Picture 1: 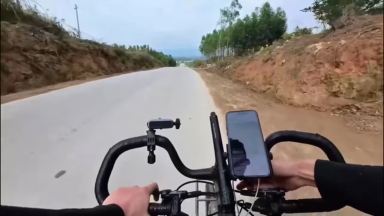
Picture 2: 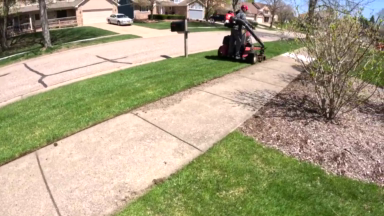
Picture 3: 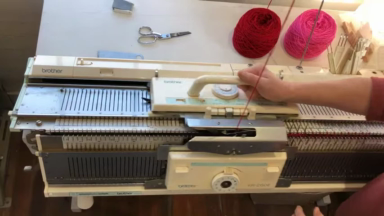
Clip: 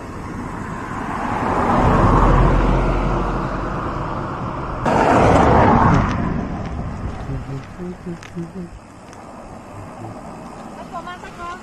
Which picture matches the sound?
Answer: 1